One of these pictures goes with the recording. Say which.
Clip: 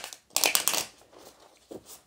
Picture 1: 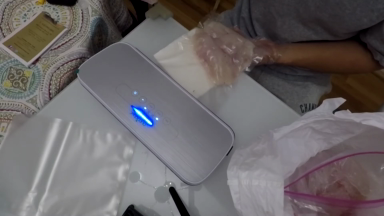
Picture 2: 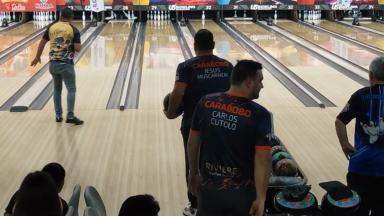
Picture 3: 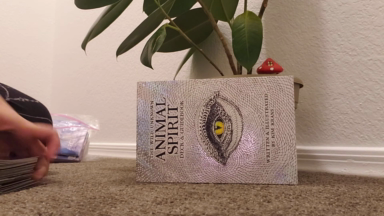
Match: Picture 3